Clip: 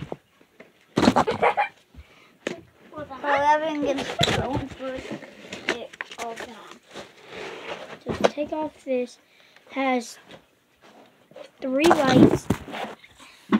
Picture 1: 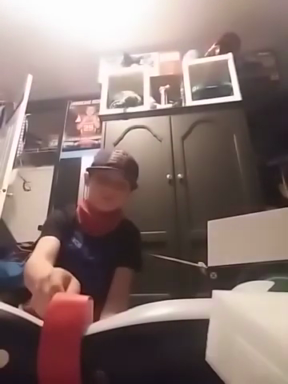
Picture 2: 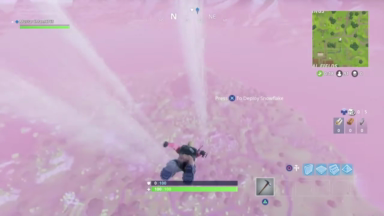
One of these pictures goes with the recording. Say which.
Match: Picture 1